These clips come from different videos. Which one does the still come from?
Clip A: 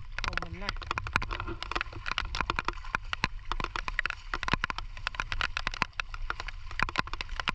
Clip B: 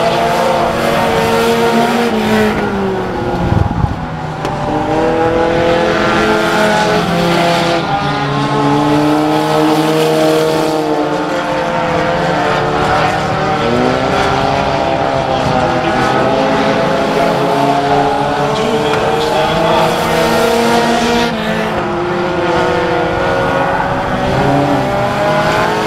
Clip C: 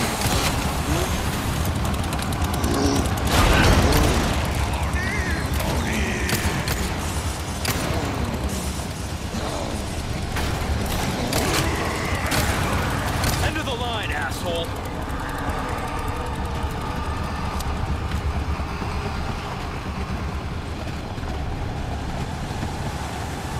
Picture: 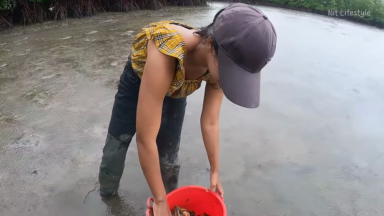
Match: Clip A